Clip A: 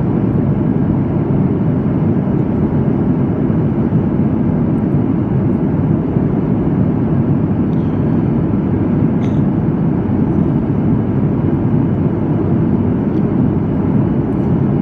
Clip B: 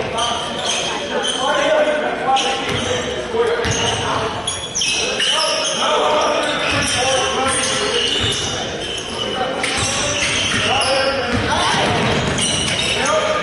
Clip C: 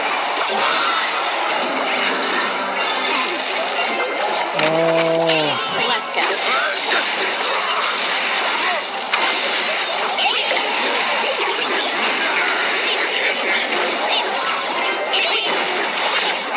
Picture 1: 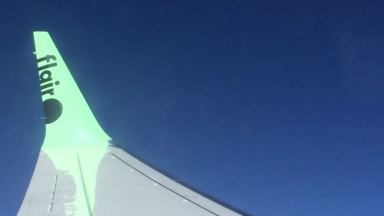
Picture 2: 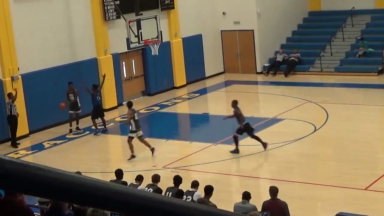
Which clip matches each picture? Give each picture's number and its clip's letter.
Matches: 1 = A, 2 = B